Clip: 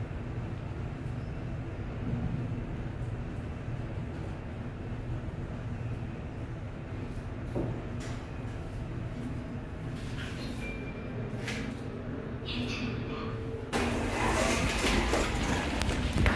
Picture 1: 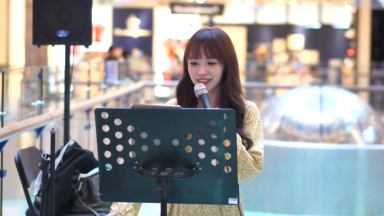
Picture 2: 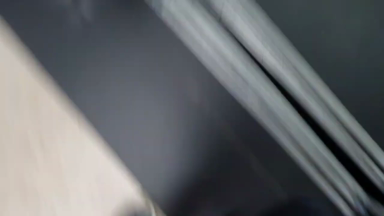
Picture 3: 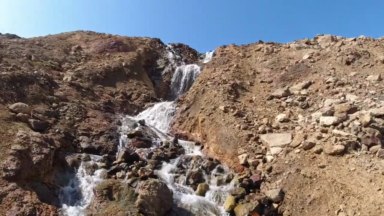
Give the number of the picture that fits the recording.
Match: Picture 2